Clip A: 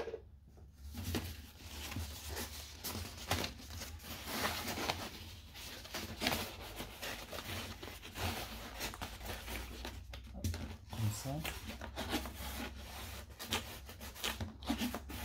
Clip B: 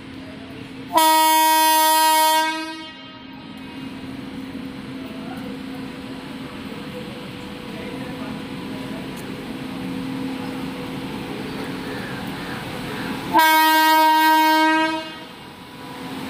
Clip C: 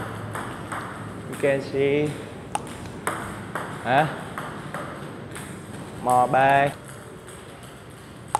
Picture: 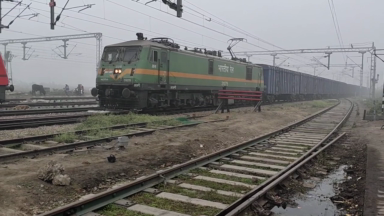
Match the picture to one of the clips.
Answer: B